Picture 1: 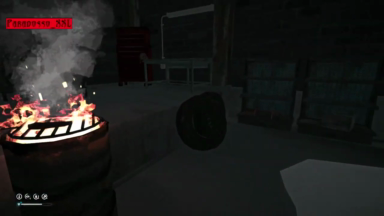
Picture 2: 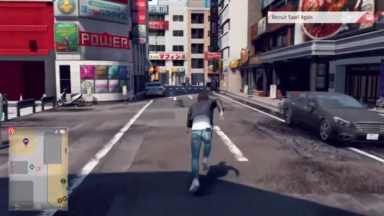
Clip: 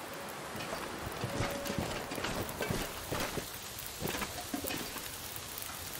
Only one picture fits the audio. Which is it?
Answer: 1